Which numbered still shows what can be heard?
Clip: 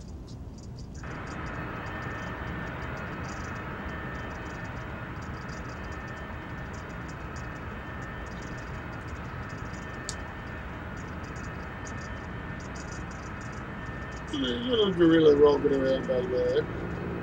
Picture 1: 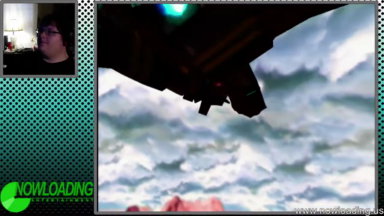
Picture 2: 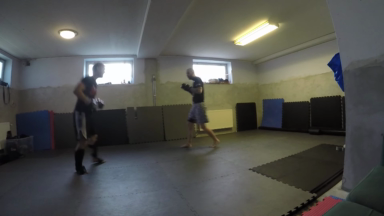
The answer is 1